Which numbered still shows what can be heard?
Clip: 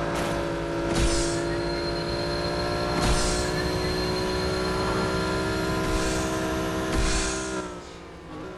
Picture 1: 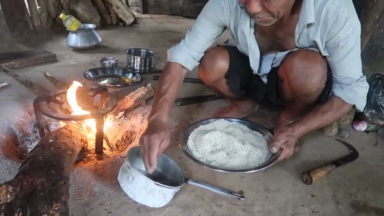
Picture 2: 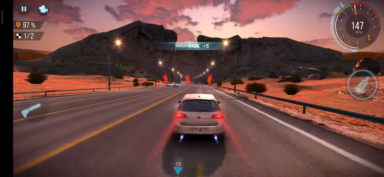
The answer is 2